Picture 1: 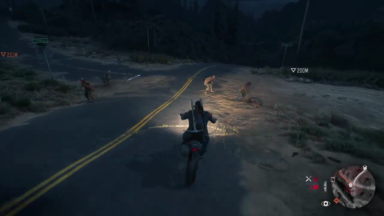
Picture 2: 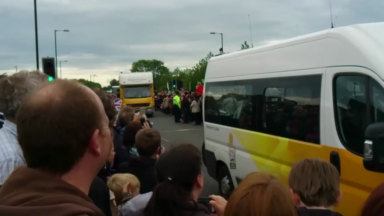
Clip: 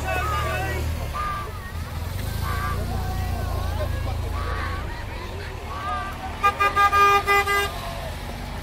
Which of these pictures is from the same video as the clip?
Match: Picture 2